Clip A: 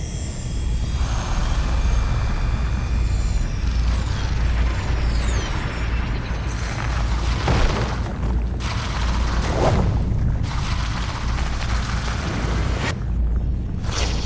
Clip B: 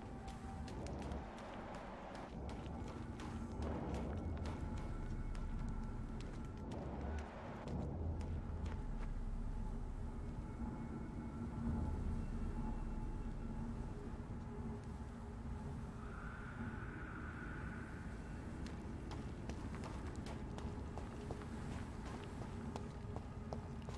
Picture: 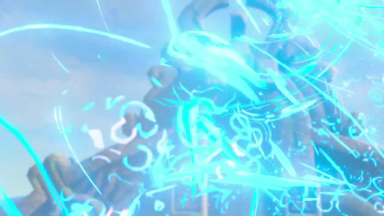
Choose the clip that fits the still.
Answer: A